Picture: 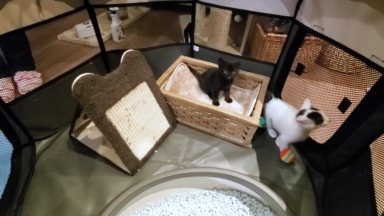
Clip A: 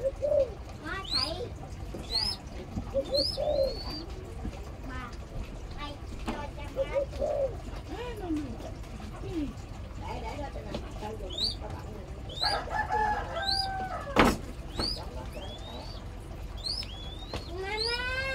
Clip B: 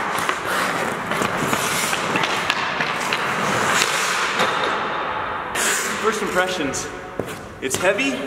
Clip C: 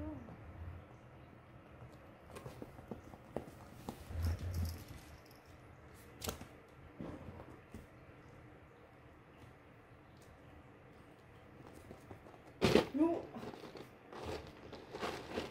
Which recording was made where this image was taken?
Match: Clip C